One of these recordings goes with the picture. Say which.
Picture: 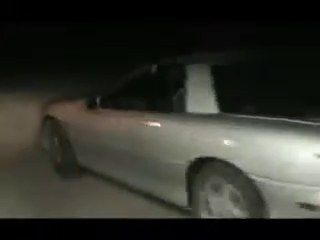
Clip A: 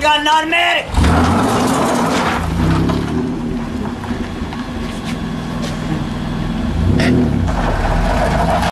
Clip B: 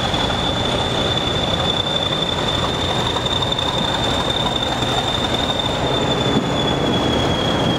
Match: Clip A